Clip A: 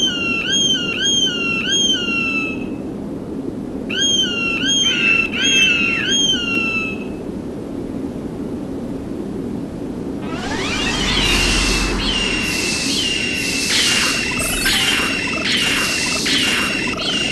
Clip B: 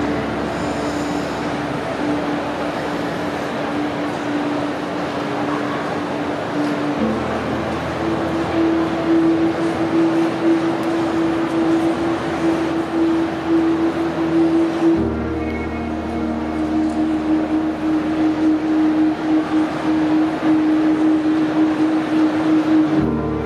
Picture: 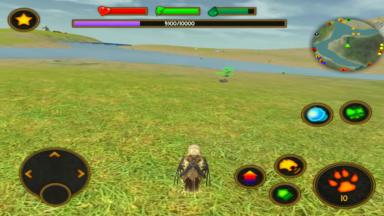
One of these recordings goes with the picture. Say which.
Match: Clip A